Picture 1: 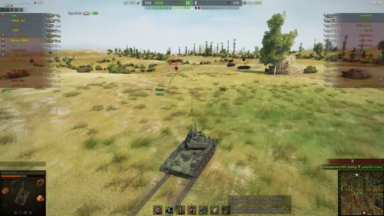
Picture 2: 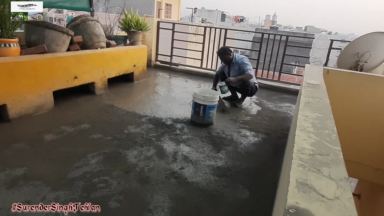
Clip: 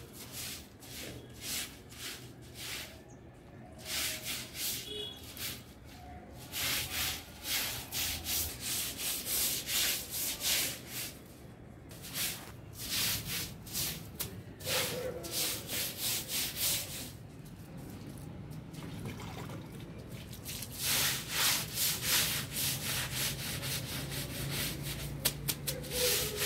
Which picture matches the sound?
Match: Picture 2